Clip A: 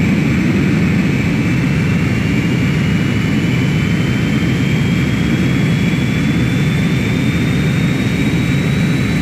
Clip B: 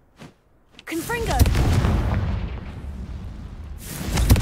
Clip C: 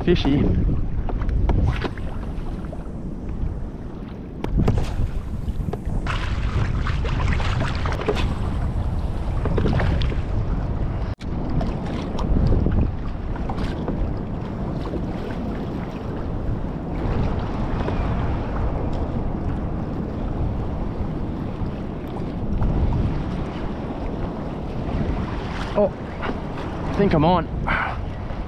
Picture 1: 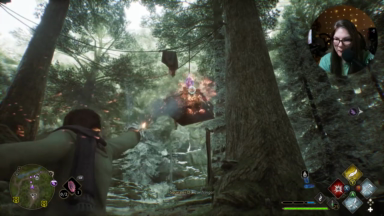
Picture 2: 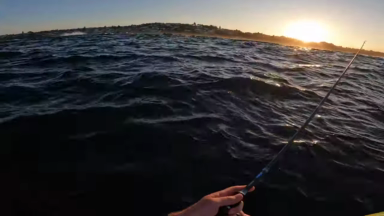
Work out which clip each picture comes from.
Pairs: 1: B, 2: C